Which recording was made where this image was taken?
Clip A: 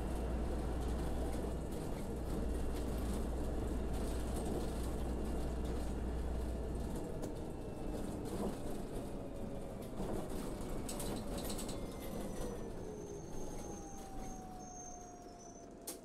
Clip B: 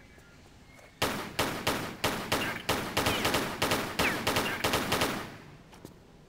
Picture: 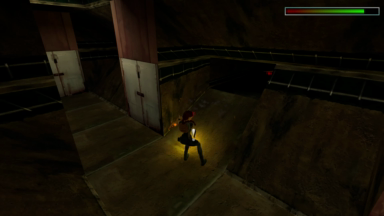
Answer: B